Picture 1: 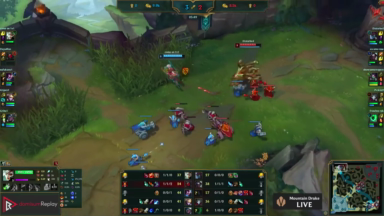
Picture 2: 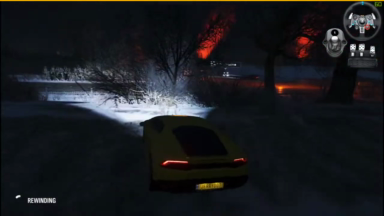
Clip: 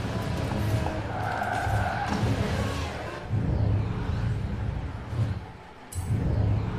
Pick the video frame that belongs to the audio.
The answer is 2